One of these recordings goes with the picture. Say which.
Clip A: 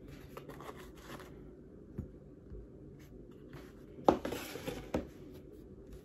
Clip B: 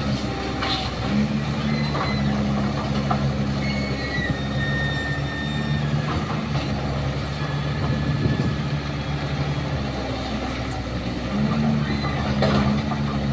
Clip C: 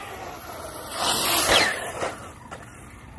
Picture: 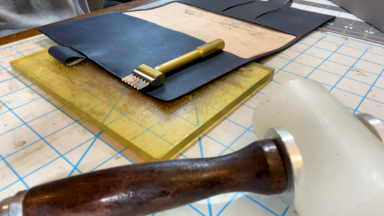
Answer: A